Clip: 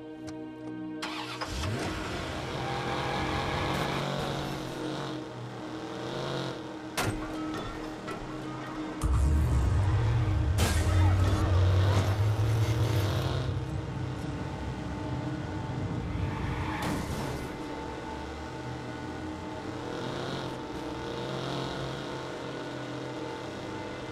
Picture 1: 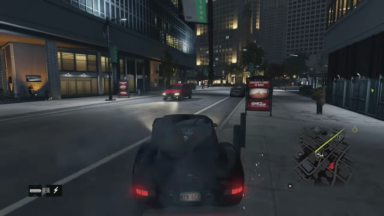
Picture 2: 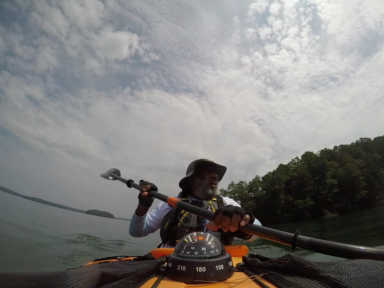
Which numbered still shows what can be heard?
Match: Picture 1